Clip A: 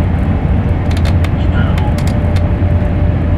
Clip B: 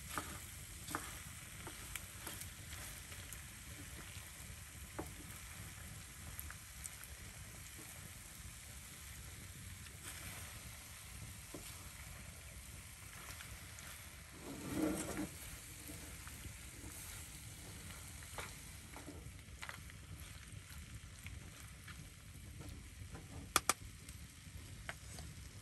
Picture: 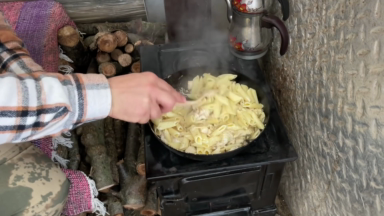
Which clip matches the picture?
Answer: B